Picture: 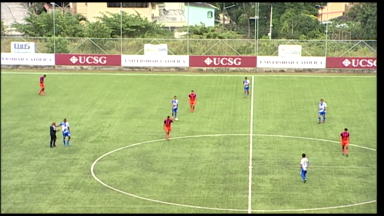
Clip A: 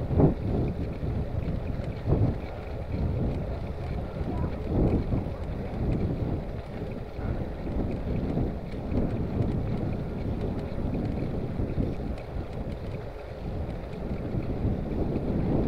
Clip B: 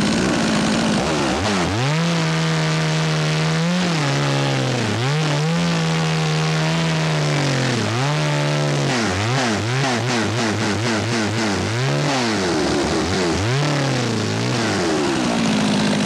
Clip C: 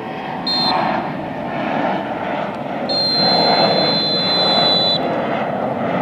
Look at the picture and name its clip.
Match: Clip C